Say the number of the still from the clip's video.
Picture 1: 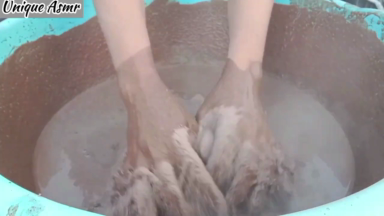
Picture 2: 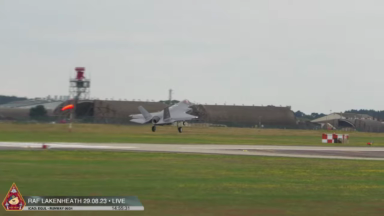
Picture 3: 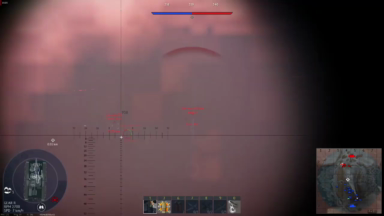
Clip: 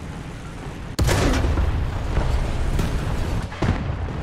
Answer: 3